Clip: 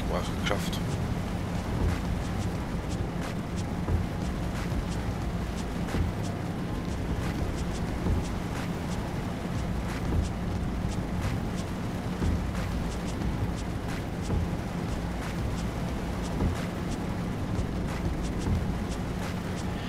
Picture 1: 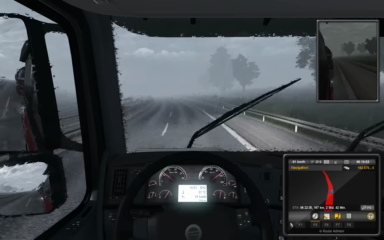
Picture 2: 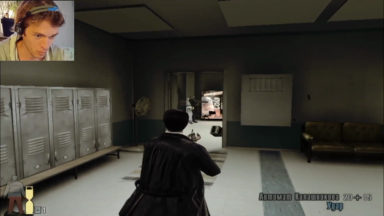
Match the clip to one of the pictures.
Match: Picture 1